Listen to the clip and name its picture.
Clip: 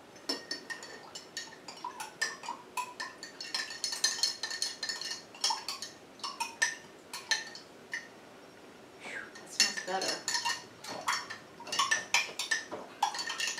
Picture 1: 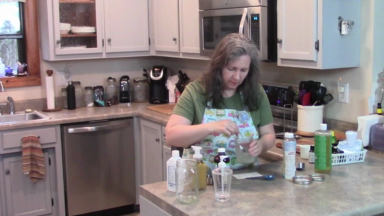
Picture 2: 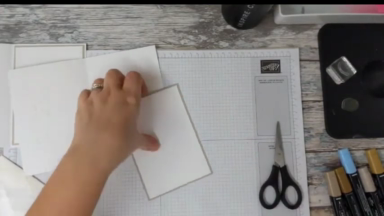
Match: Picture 1